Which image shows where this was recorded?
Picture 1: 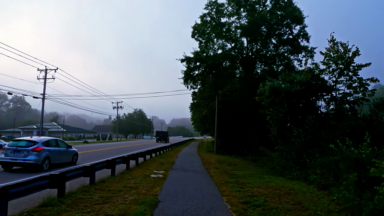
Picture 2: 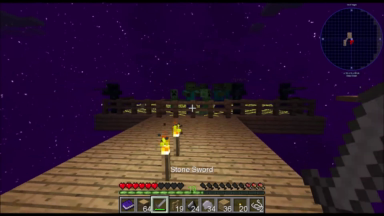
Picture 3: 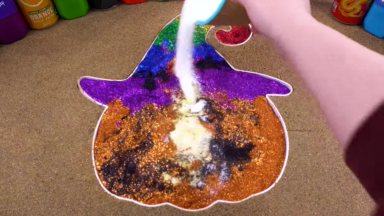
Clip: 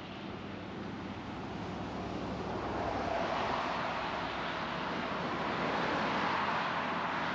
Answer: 1